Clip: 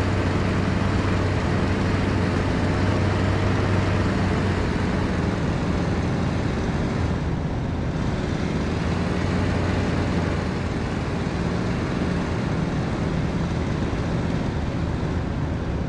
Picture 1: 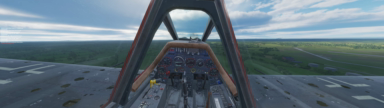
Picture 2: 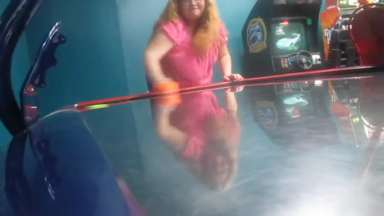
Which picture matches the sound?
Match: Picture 1